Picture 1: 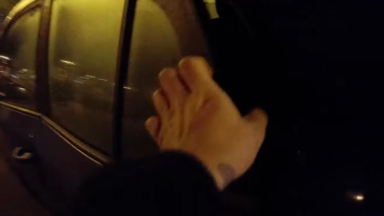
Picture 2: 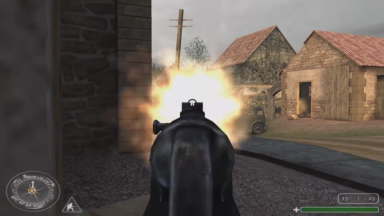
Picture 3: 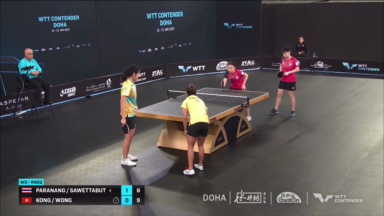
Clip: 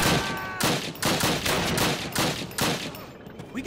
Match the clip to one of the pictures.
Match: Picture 2